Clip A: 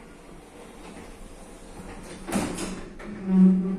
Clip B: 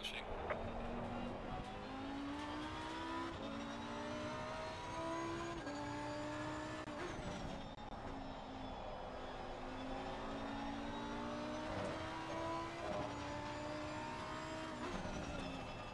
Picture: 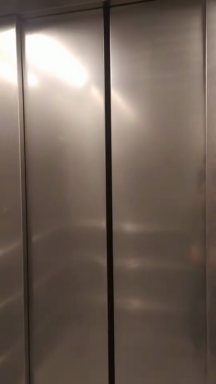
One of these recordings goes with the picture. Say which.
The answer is A